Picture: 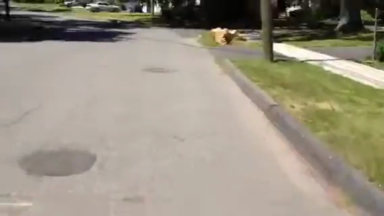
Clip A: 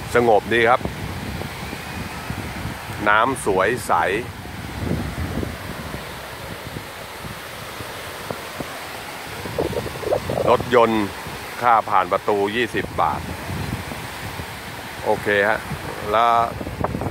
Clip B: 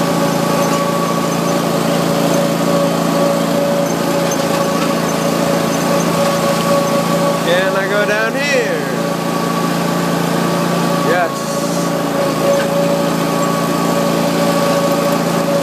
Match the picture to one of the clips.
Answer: B